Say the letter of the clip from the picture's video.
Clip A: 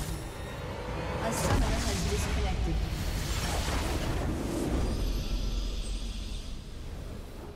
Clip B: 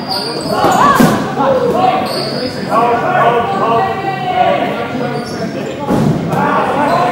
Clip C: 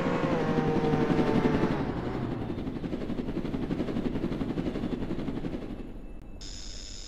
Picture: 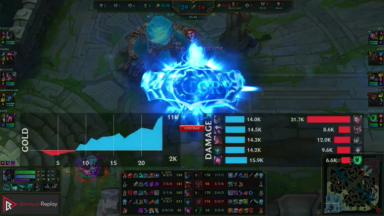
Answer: A